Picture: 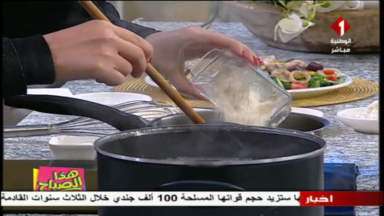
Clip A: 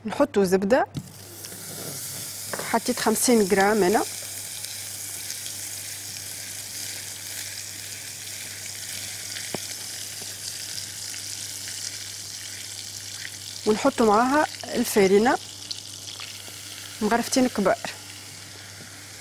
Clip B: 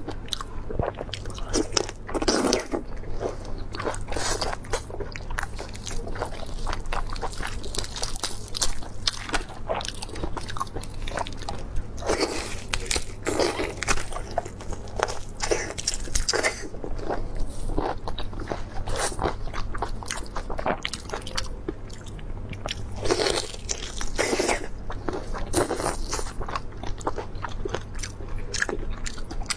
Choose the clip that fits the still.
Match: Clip A